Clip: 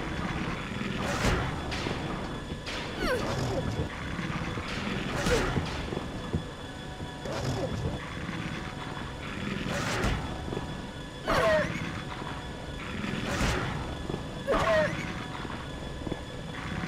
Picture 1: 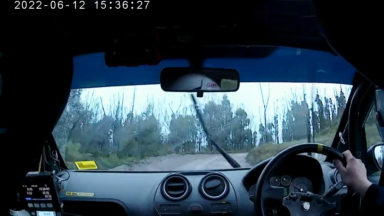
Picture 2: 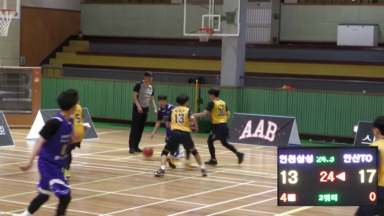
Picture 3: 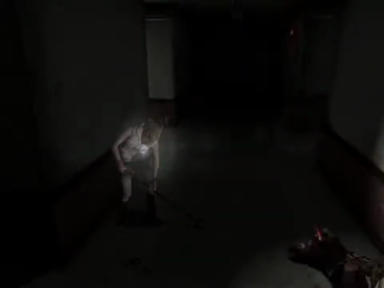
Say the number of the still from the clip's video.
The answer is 3